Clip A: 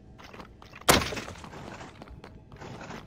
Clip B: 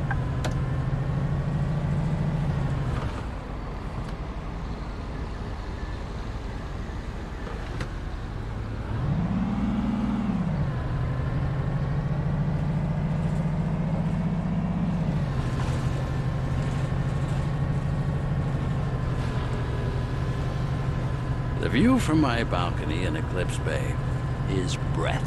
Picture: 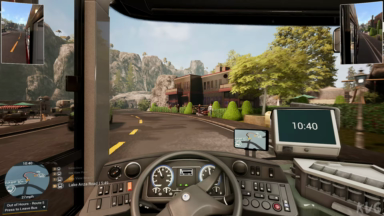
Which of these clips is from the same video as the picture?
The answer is B